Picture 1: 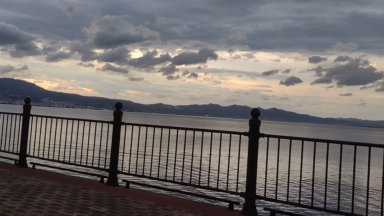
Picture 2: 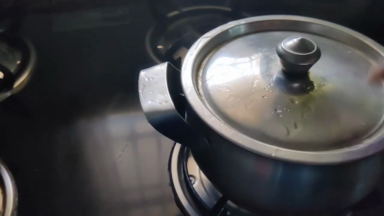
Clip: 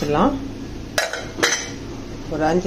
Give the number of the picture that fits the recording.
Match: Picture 2